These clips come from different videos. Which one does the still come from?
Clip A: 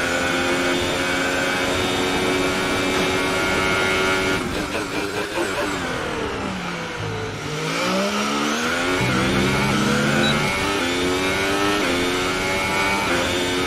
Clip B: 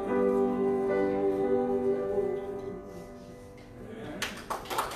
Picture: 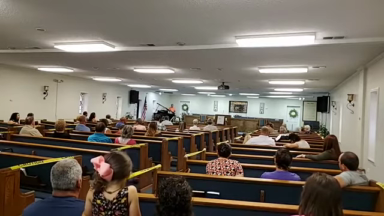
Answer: B